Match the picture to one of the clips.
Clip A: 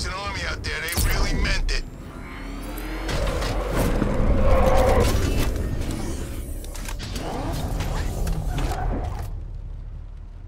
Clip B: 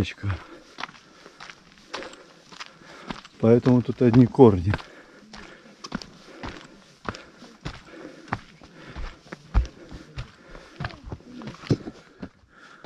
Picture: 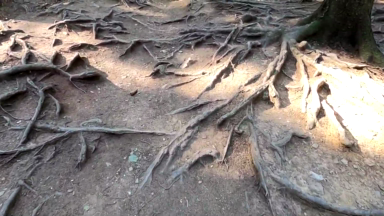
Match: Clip B